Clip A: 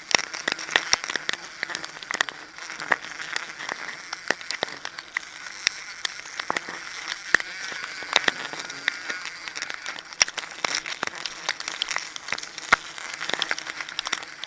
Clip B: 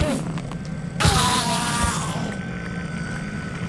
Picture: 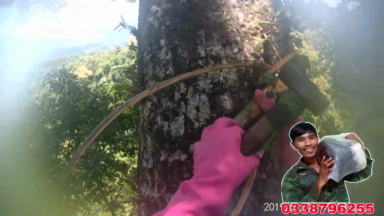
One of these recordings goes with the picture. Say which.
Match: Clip A